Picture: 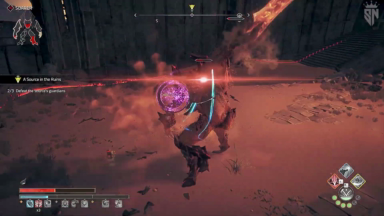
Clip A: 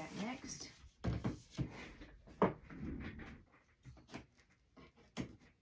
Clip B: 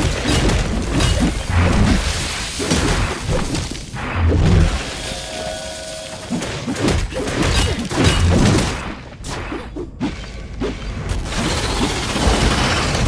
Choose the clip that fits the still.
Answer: B